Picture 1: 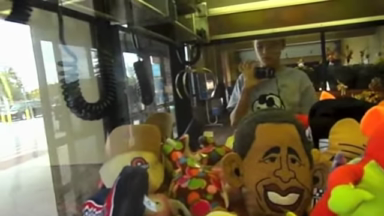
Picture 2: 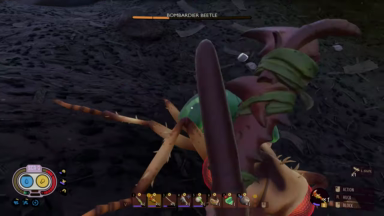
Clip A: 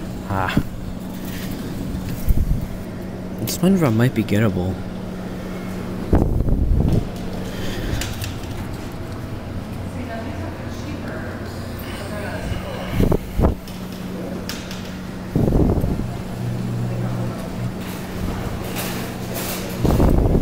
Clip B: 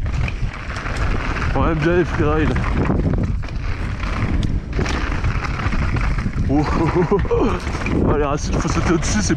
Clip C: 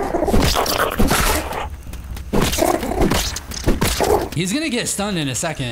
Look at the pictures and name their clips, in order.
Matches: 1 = A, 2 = C